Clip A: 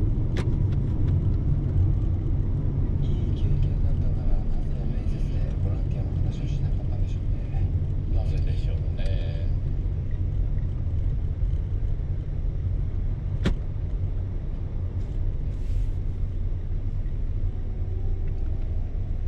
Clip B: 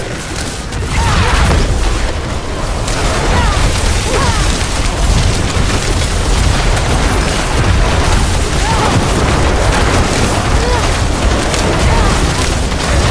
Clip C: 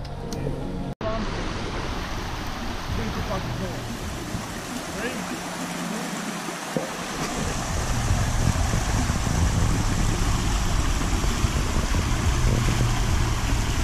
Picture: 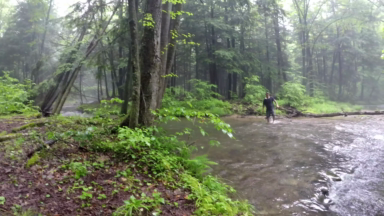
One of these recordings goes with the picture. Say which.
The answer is C